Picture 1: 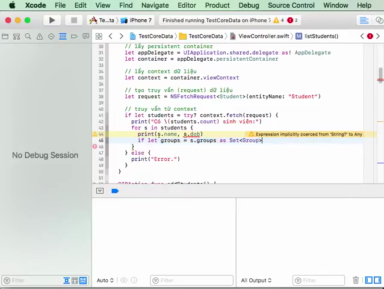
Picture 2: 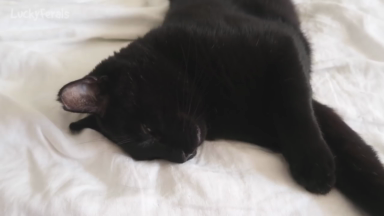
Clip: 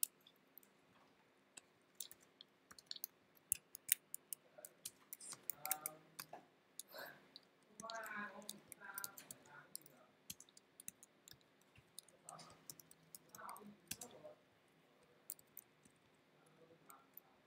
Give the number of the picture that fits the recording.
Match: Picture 1